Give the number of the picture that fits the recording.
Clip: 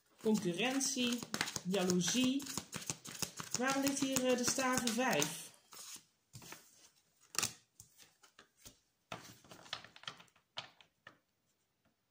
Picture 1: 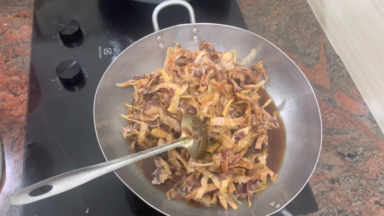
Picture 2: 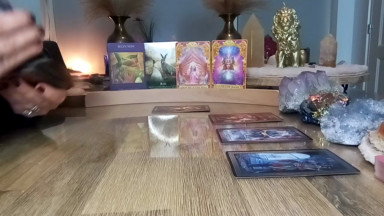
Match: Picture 2